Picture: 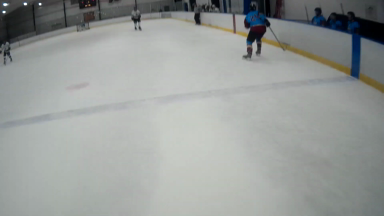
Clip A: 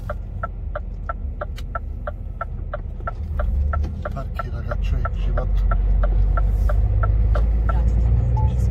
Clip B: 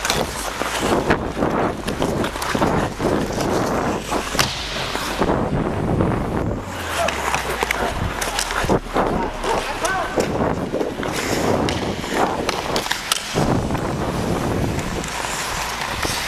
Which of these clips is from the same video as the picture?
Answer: B